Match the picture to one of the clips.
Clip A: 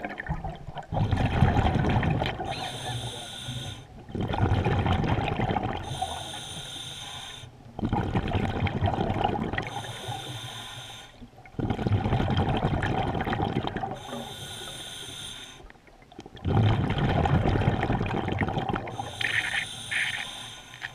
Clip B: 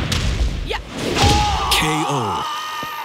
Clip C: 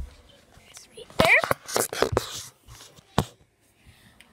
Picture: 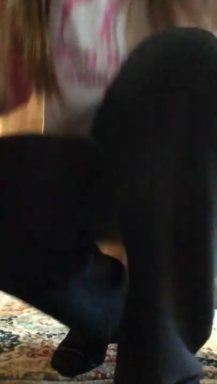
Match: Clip C